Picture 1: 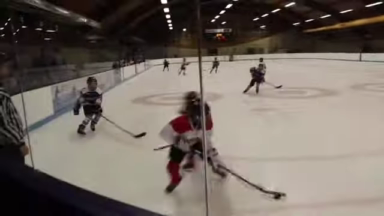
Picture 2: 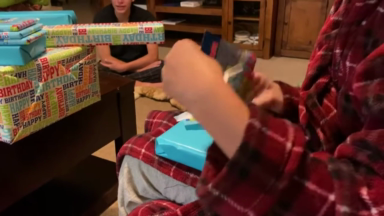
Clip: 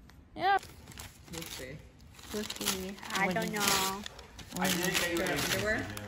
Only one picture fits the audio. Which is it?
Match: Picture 2